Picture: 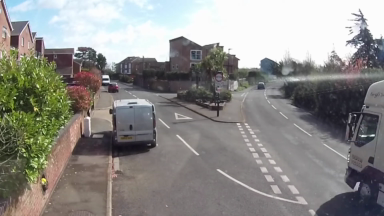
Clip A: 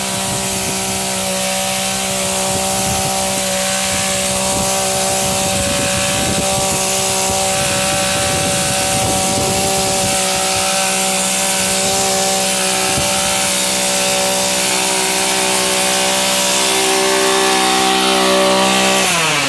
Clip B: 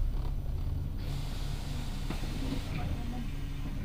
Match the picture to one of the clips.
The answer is B